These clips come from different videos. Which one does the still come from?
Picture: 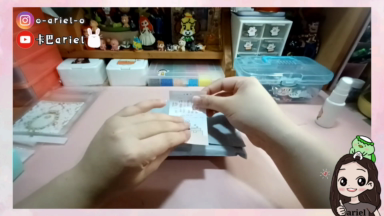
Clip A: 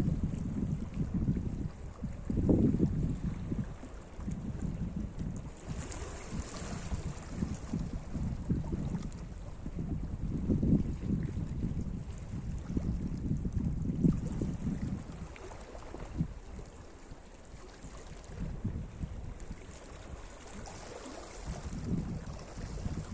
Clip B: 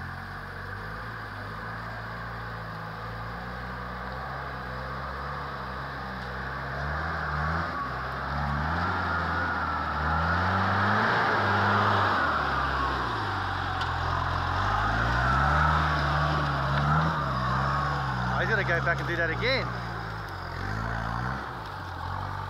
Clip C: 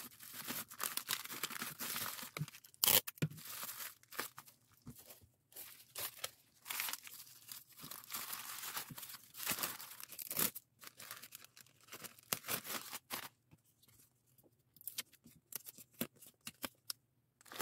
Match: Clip C